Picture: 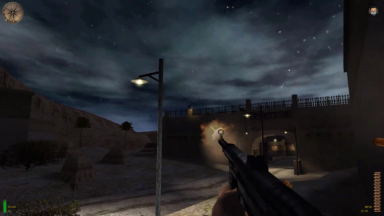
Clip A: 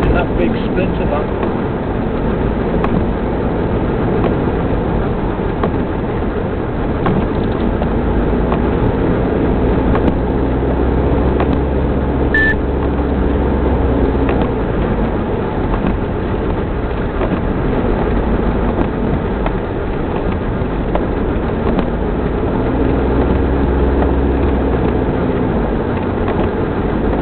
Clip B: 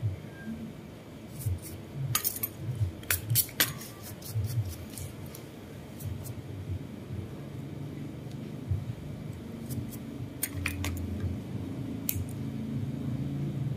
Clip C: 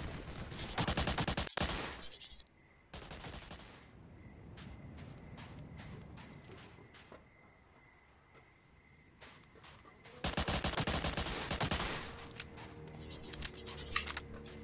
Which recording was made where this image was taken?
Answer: C